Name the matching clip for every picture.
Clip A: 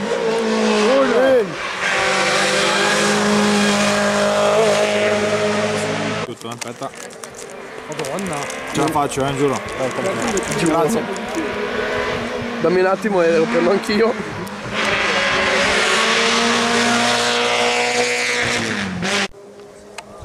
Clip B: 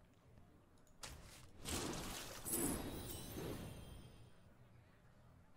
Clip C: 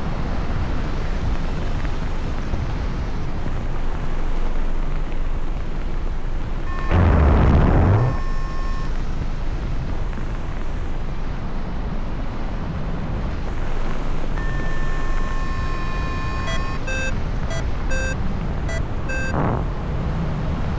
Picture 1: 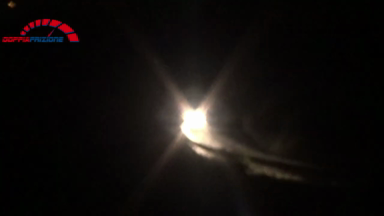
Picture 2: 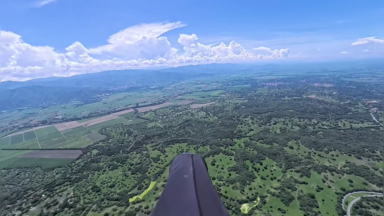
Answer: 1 A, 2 C